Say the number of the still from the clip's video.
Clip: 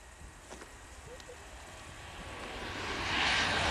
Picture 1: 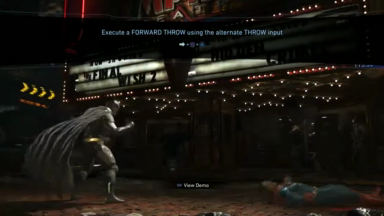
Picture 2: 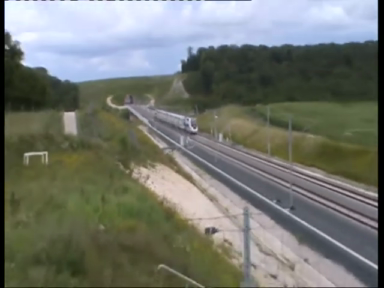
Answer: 2